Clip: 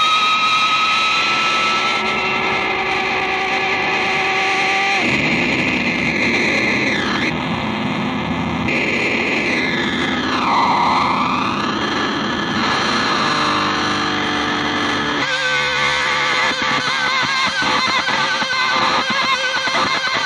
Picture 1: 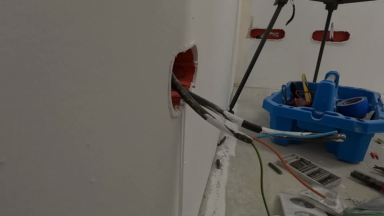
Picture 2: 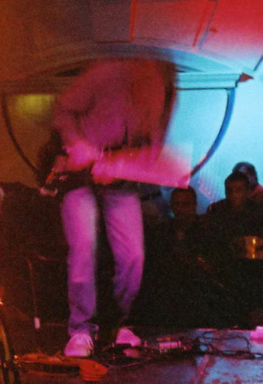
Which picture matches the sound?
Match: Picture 2